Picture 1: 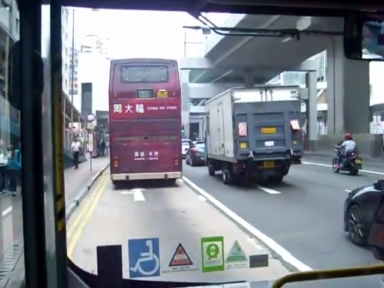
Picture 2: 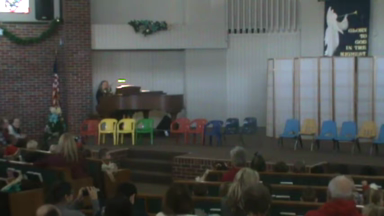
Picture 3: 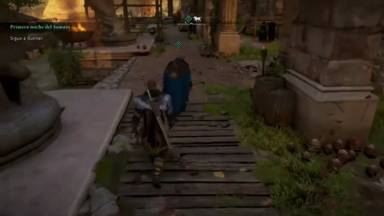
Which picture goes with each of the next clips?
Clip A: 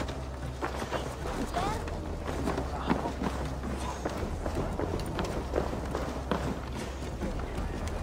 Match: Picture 3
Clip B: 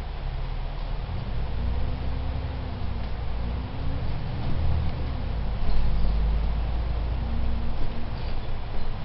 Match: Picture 1